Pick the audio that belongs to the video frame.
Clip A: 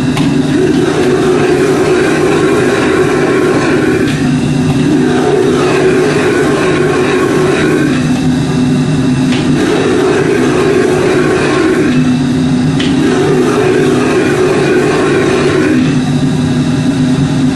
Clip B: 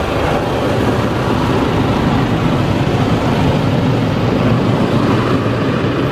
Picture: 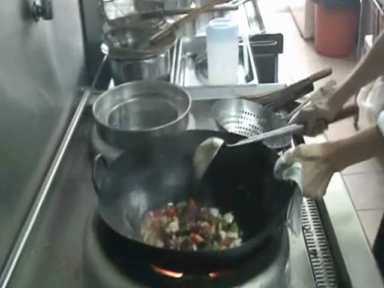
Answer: A